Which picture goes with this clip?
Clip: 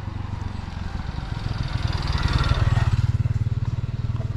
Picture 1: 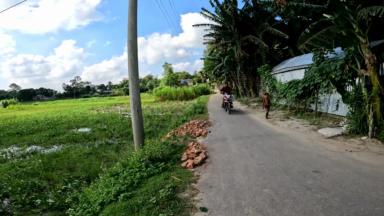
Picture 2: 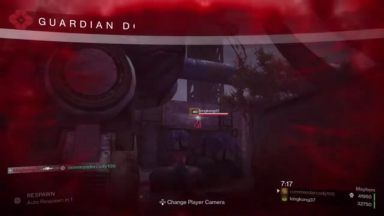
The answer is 1